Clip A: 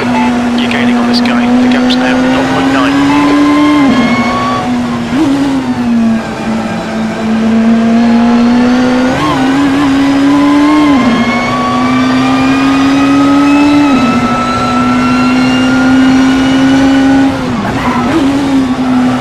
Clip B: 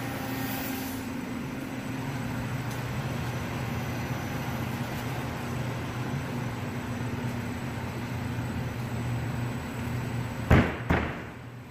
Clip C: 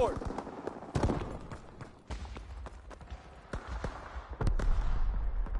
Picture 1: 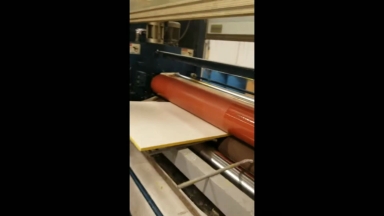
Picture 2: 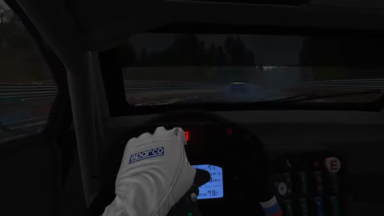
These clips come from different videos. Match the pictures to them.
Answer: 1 B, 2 A